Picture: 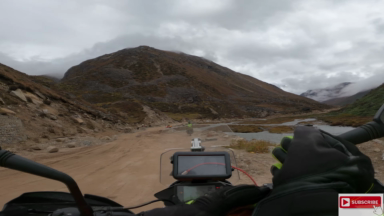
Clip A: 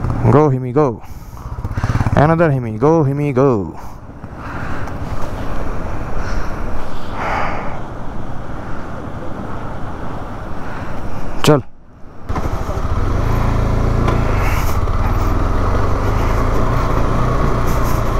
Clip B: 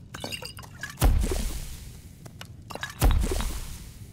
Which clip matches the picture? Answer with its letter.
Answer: A